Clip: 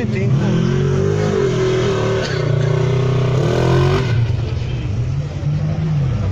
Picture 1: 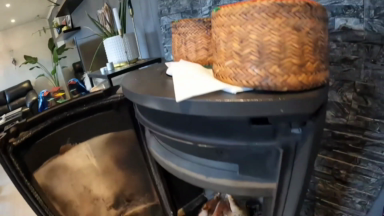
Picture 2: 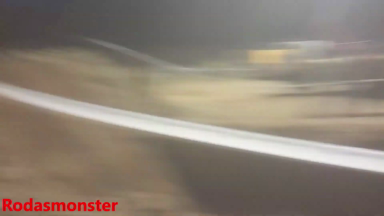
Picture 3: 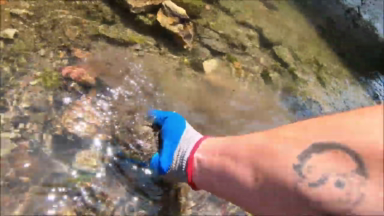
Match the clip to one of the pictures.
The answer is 2